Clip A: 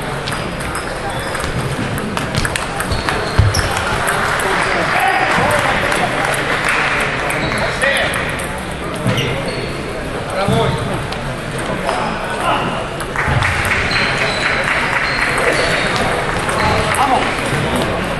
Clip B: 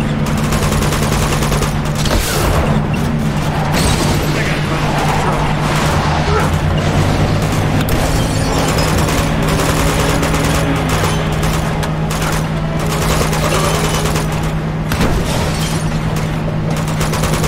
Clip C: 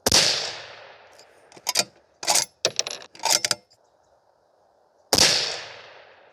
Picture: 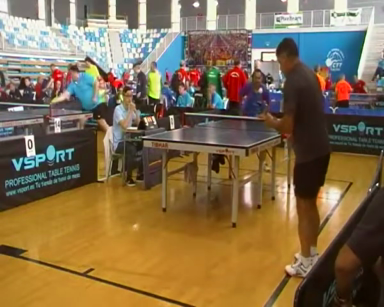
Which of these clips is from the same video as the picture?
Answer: A